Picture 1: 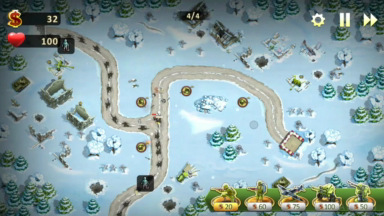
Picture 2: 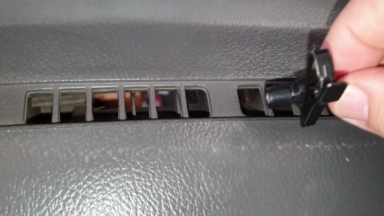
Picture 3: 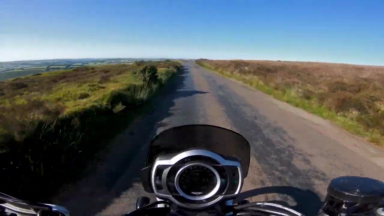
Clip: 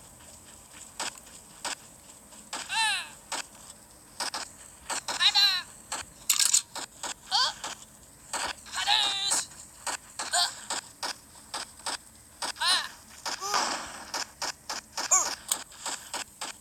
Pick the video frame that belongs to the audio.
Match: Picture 1